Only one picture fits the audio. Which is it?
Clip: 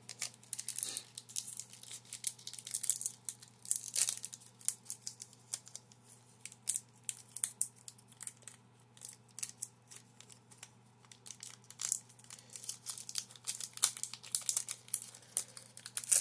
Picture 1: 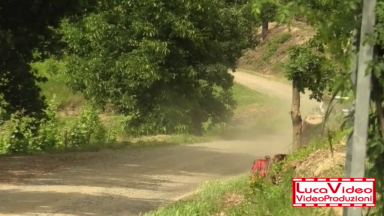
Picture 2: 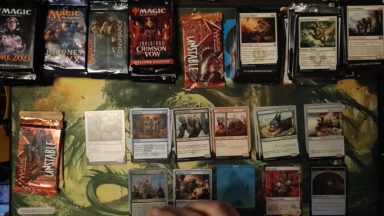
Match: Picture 2